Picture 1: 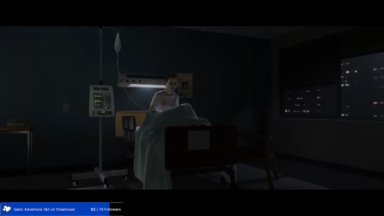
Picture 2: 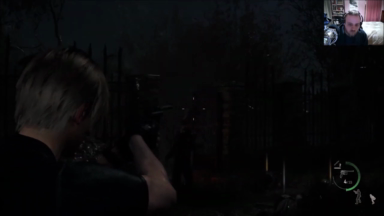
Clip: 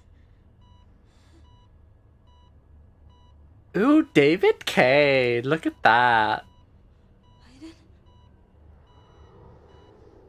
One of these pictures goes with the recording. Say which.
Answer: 1